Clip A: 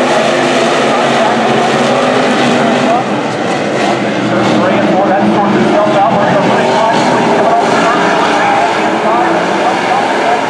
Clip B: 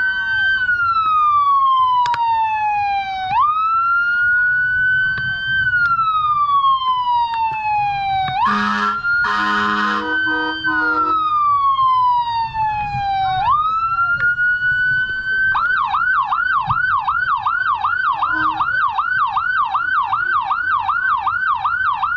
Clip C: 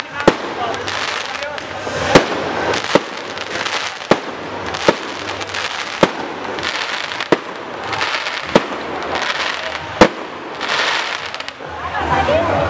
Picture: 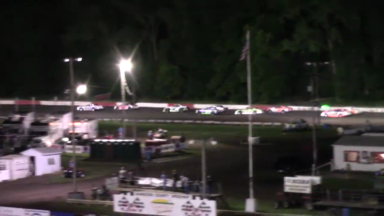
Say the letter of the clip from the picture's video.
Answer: A